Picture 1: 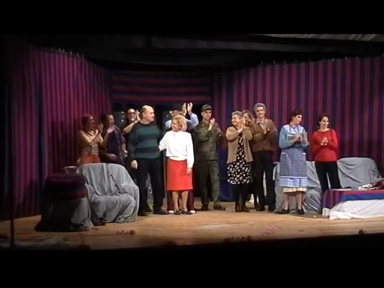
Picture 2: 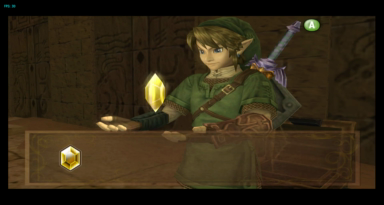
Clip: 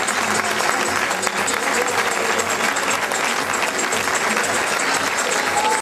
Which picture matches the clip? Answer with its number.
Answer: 1